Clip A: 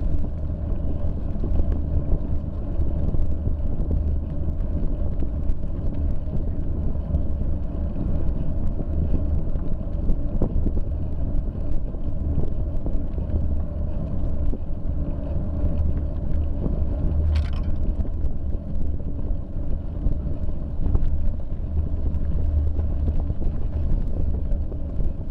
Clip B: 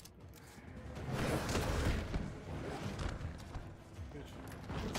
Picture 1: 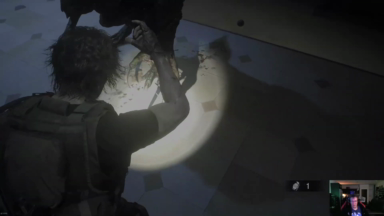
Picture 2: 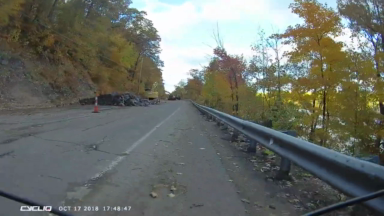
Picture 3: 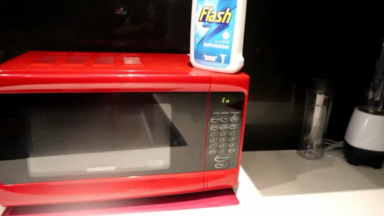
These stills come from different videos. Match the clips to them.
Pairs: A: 2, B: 1